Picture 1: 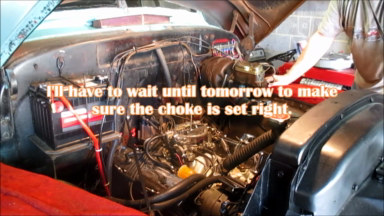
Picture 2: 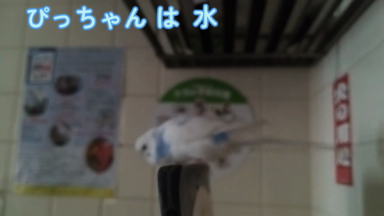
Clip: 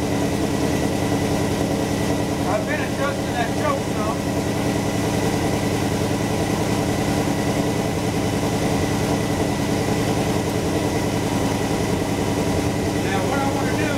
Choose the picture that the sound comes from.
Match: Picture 1